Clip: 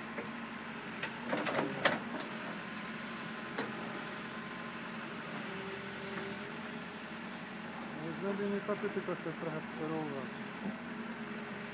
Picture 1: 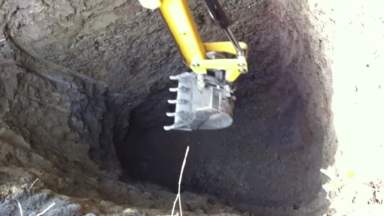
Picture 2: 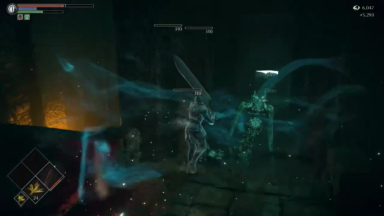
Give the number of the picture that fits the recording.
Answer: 1